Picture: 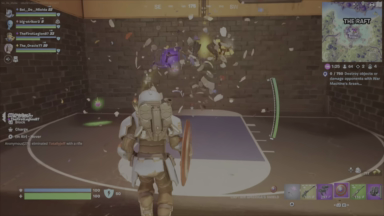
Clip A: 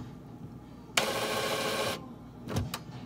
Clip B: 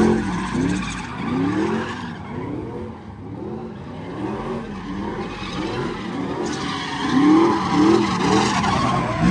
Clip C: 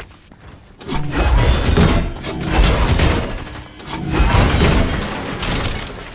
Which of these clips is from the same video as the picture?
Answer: C